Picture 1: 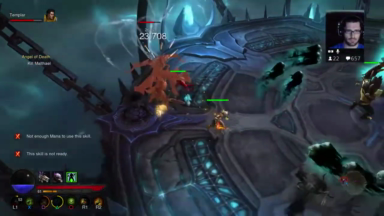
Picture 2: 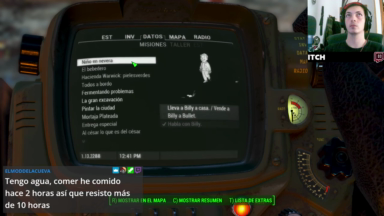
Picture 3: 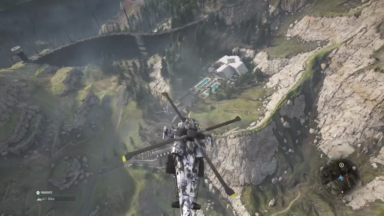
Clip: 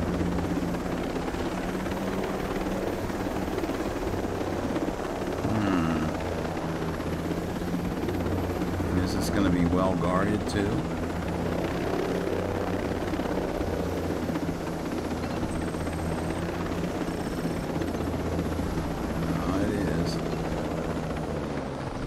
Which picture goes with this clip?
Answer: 3